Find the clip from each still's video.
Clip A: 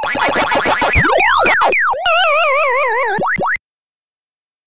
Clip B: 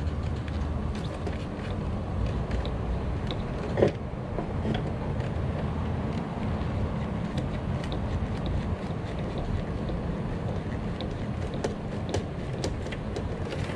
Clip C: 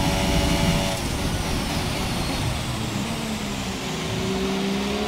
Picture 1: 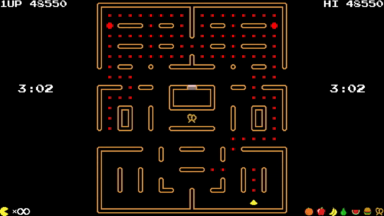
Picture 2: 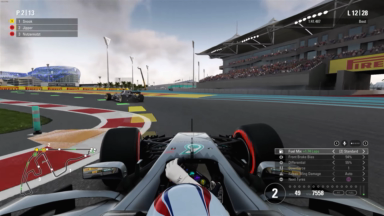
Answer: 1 A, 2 C